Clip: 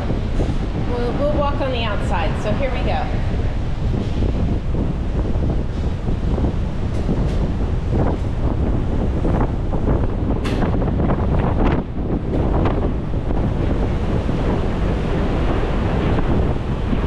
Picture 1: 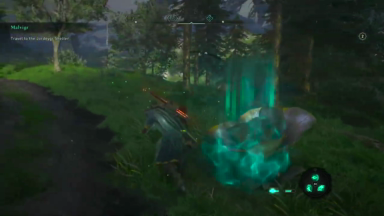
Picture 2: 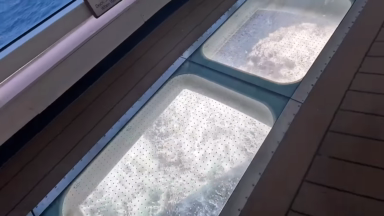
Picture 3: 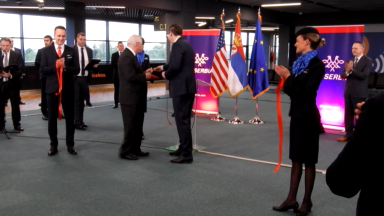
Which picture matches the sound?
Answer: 2